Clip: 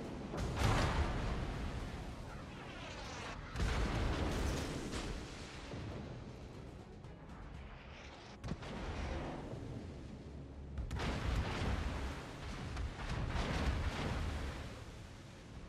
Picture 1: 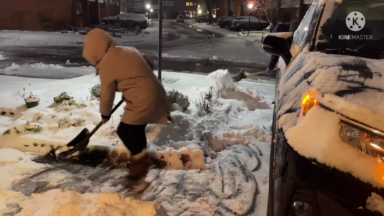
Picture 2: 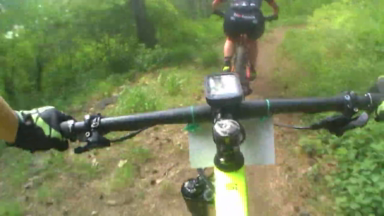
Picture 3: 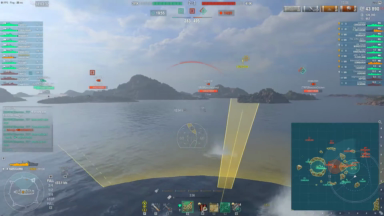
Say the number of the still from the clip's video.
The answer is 3